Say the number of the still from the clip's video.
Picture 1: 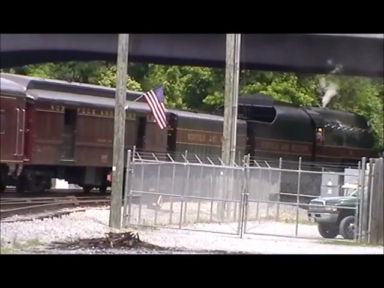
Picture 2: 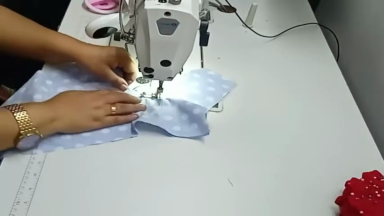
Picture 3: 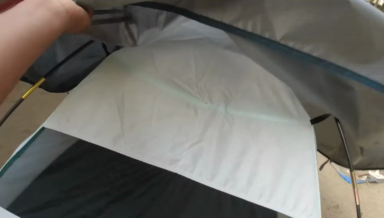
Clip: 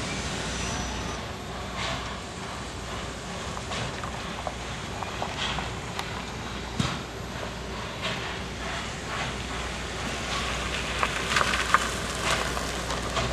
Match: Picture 1